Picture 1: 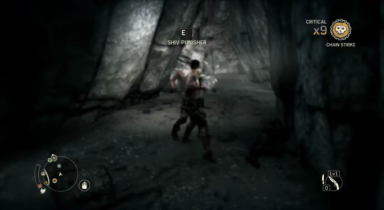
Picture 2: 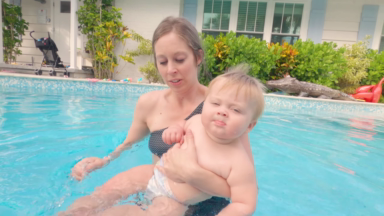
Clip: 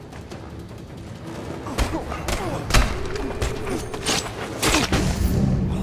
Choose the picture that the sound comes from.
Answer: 1